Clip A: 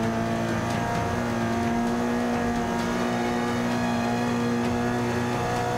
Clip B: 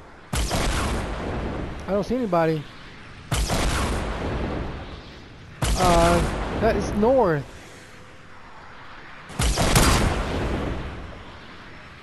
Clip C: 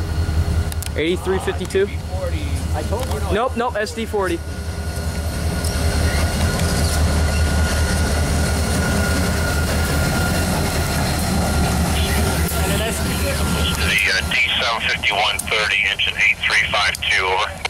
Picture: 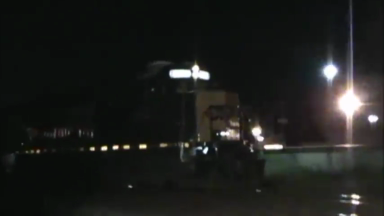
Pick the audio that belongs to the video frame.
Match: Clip C